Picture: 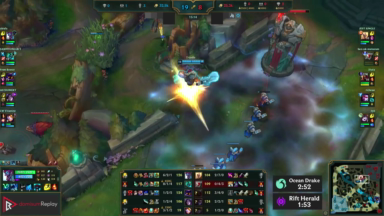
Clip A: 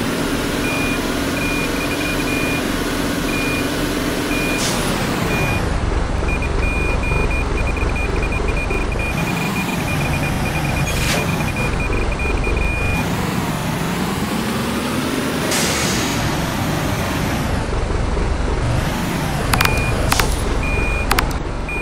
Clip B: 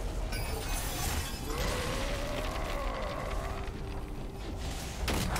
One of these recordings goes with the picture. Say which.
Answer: B